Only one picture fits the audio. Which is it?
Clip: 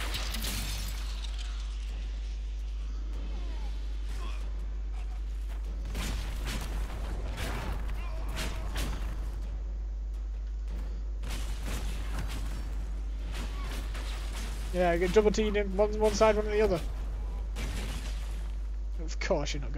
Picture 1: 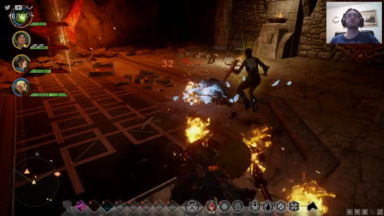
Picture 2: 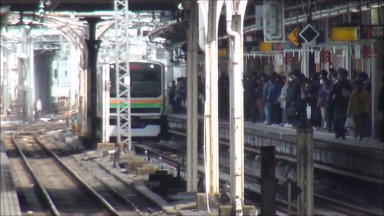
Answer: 1